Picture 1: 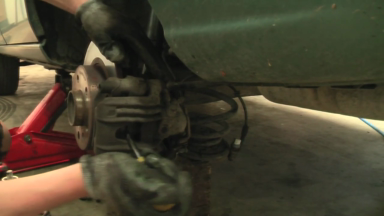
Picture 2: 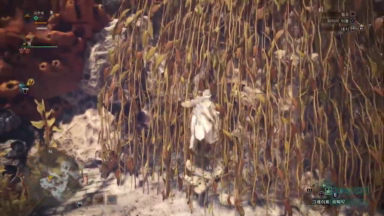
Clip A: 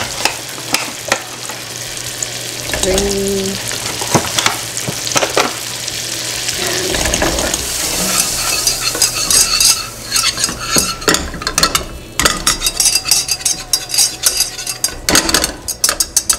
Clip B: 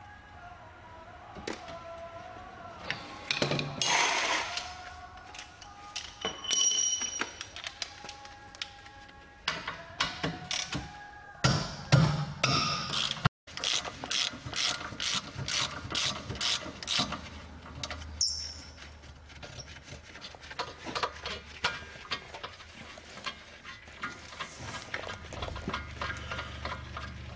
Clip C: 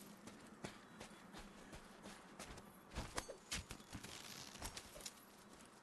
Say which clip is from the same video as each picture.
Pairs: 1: B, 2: C